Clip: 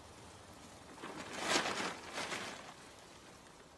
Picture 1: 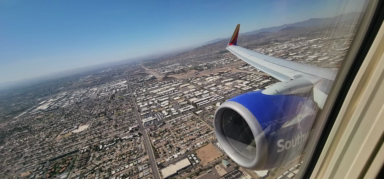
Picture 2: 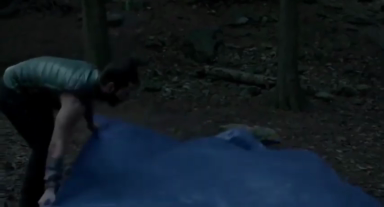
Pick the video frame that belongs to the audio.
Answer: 2